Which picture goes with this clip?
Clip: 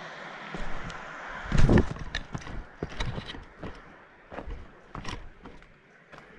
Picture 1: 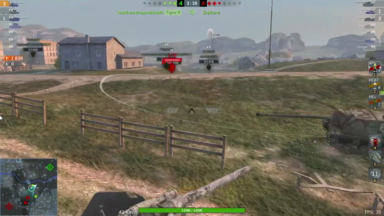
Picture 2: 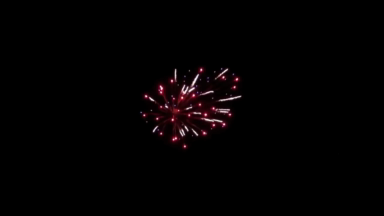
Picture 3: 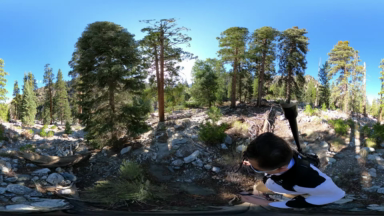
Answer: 3